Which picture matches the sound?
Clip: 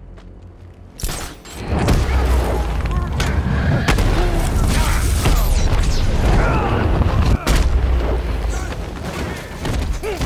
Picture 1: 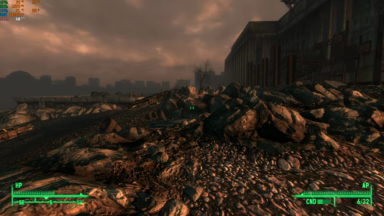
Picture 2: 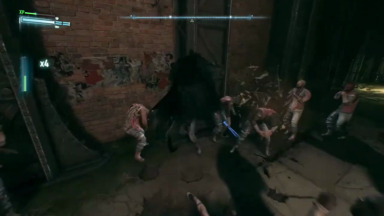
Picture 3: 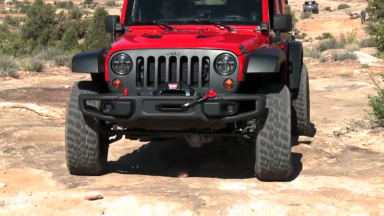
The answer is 2